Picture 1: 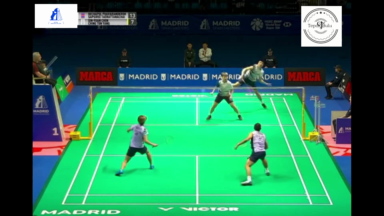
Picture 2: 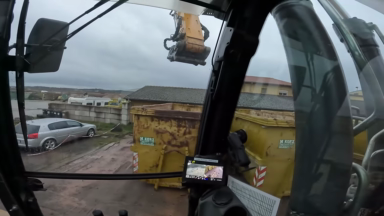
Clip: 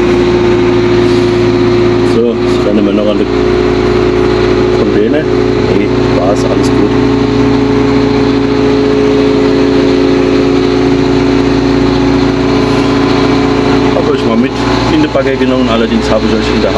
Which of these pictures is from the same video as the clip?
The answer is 2